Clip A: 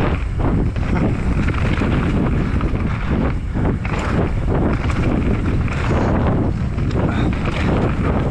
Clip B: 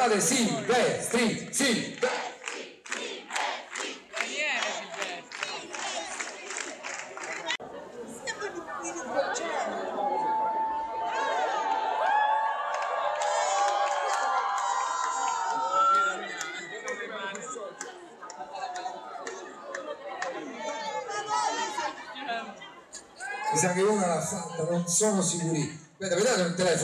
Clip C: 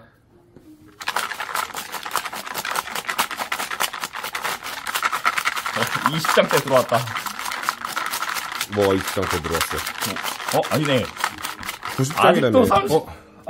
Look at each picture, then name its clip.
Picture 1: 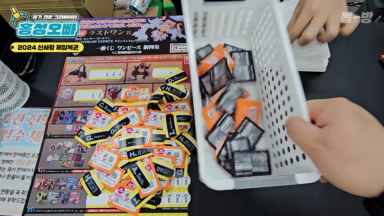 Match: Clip C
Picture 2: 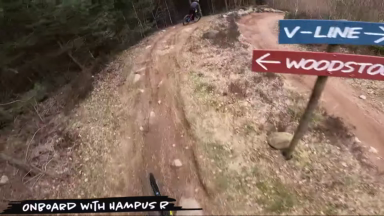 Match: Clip A